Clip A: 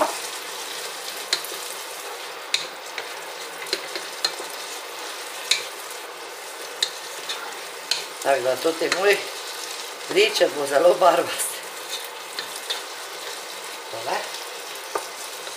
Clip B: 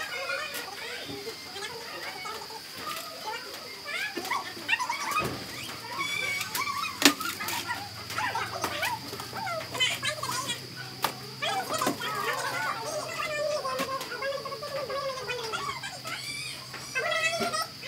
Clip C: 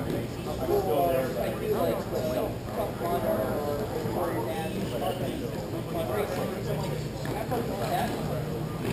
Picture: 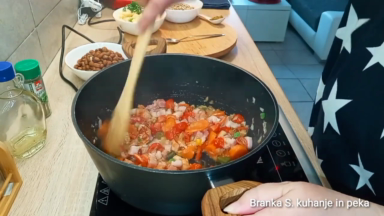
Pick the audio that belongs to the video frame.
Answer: A